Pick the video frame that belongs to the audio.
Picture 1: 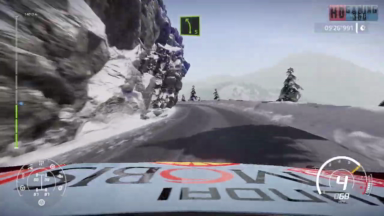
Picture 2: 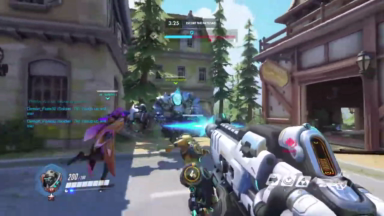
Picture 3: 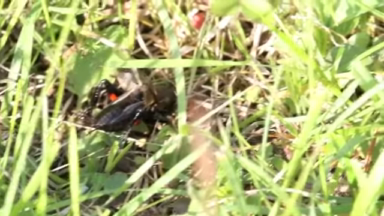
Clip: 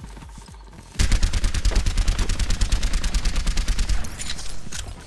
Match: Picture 2